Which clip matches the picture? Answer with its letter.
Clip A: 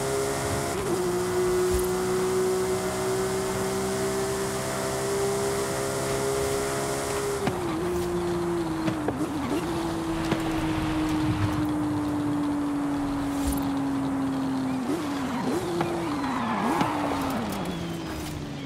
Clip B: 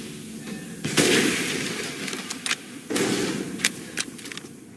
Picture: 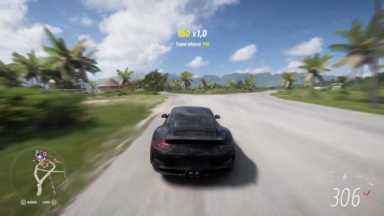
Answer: A